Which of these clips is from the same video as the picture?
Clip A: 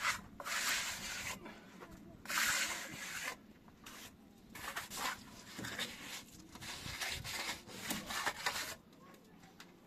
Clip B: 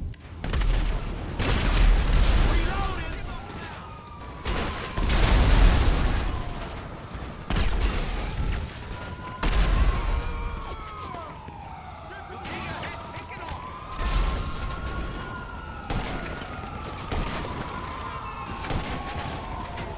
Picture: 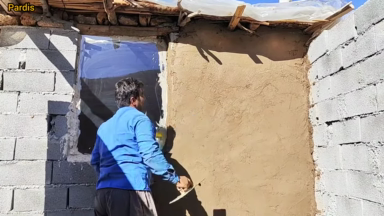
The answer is A